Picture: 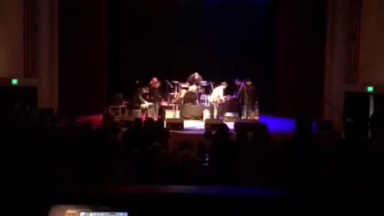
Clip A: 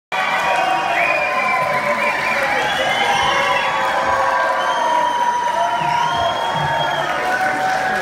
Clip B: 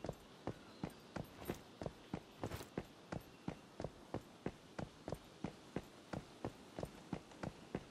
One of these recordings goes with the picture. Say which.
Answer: A